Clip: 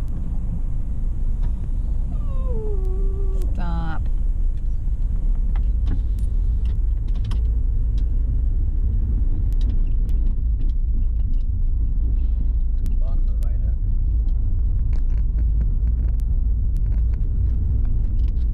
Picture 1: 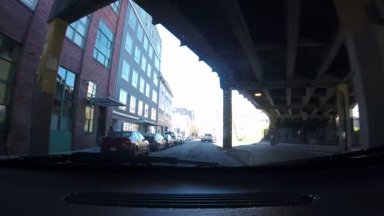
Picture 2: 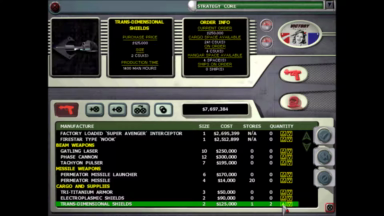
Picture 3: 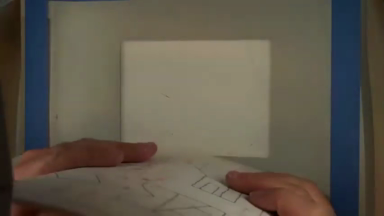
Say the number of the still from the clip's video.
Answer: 1